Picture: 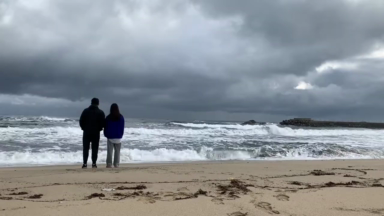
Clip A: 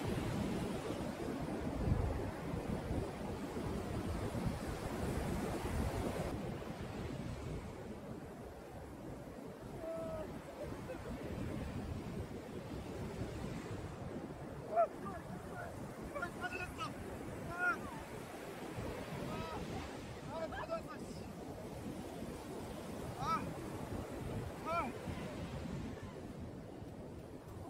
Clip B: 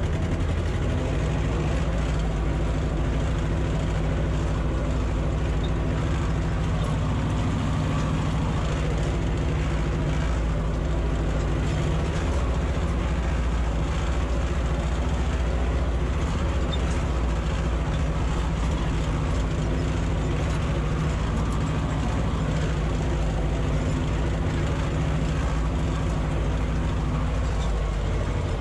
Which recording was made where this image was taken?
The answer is A